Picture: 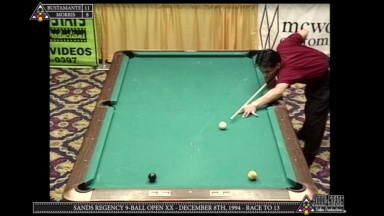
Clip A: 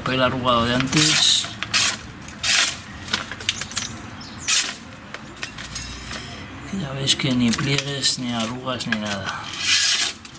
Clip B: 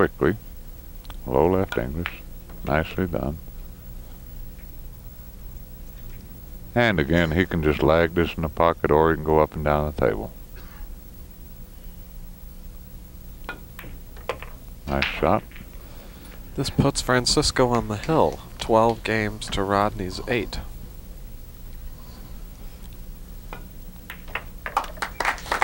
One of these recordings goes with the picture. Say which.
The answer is B